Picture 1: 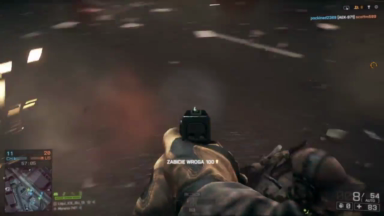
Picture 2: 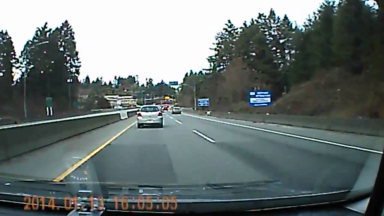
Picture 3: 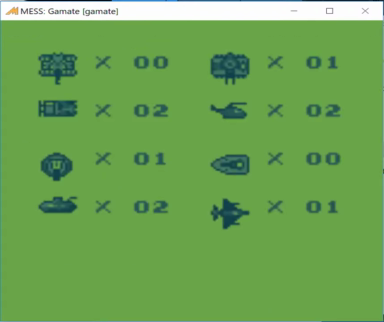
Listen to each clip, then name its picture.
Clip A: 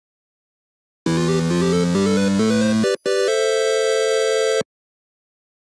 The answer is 3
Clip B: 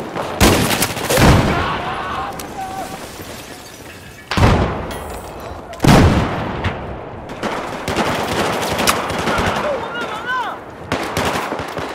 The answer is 1